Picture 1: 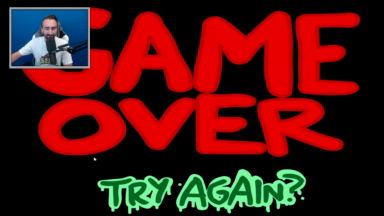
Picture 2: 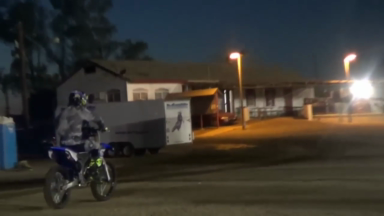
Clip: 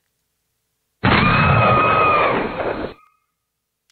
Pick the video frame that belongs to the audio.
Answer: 1